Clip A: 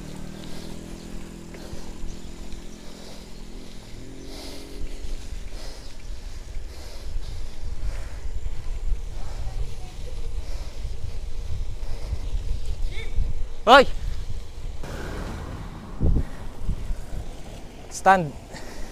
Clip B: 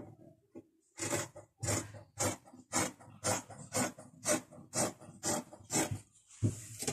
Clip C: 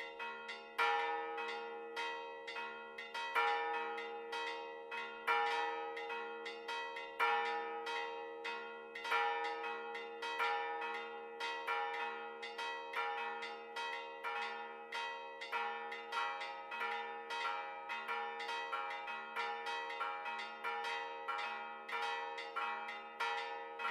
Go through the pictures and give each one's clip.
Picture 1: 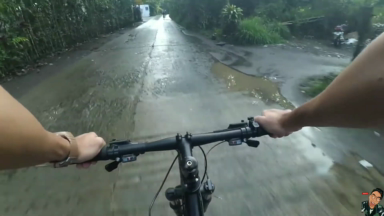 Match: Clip A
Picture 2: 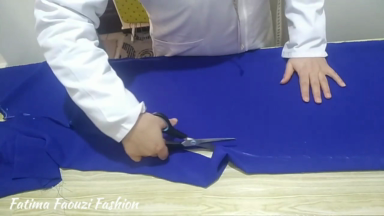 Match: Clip B